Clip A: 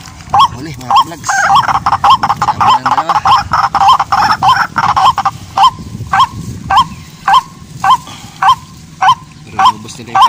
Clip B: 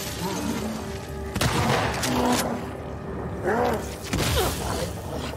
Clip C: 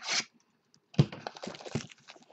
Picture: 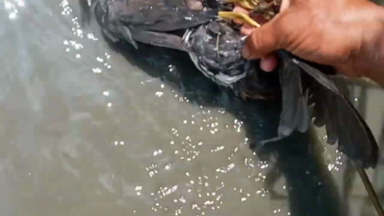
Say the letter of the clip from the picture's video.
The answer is A